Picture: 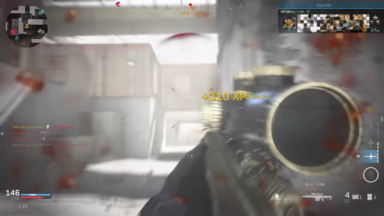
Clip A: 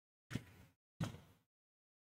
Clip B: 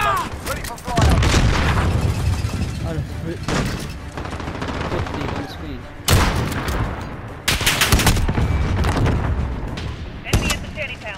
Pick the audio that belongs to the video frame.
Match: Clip B